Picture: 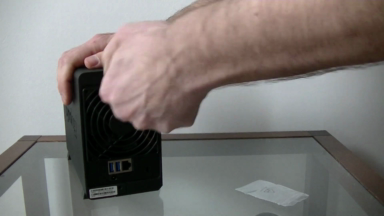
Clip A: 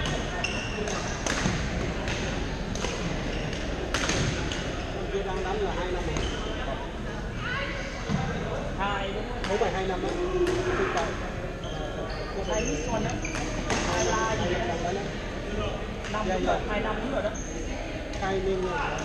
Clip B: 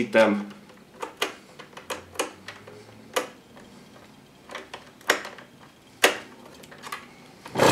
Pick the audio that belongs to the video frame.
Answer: B